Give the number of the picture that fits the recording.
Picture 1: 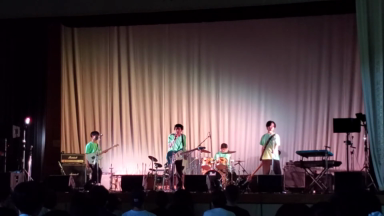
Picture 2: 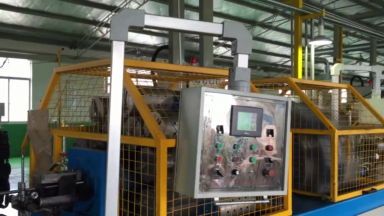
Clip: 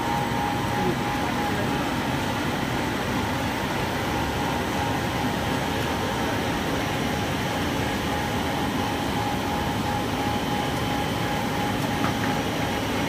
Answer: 2